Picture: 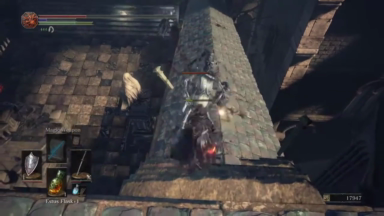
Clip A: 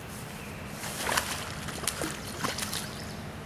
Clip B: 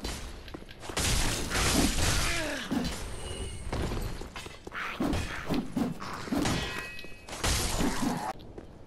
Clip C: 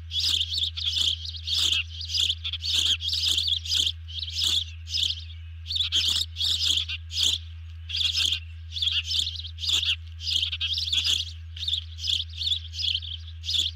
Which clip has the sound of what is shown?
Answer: B